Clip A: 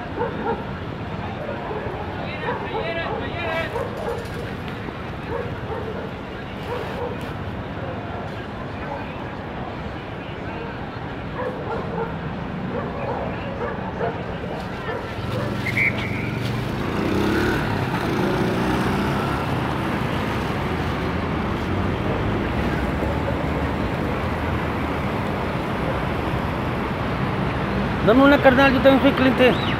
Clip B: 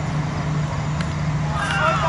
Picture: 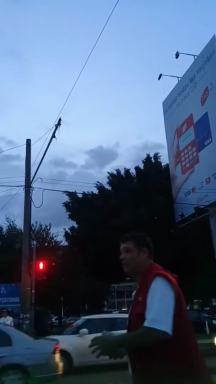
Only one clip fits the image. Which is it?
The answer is A